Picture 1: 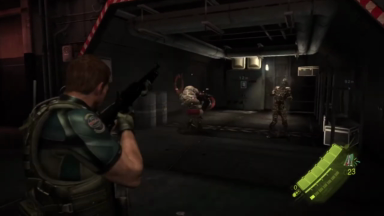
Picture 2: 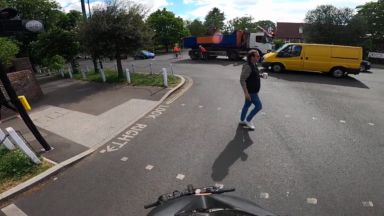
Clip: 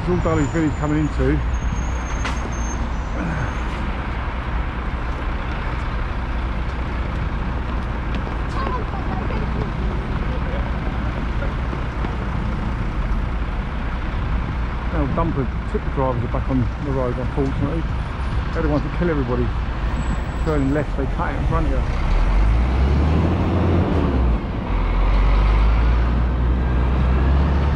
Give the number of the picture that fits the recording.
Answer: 2